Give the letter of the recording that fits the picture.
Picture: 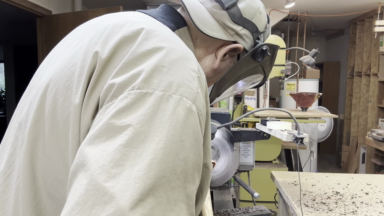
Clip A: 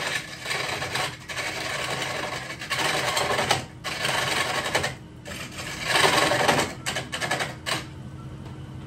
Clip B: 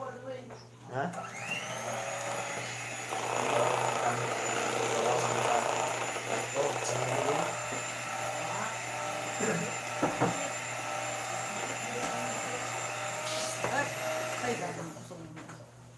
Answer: A